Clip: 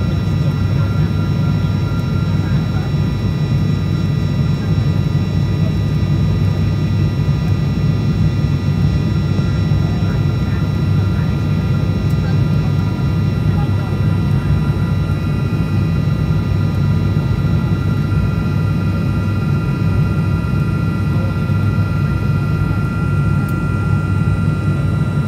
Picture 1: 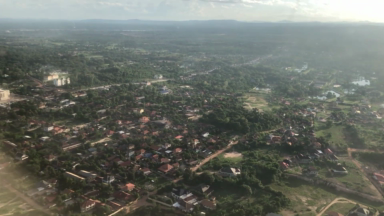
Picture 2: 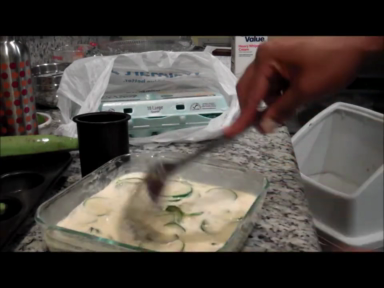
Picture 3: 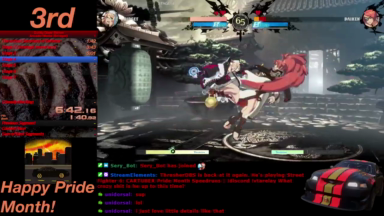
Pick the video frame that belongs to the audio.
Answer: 1